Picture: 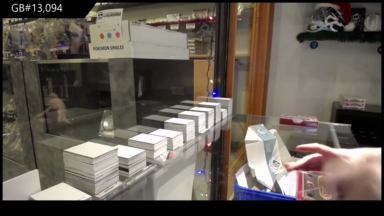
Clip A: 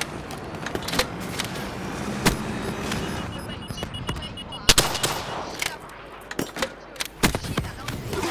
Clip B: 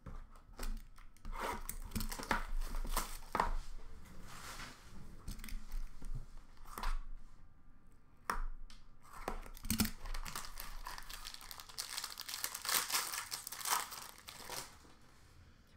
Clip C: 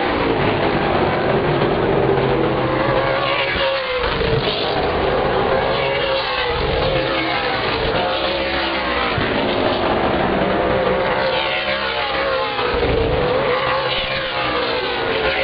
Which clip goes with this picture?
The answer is B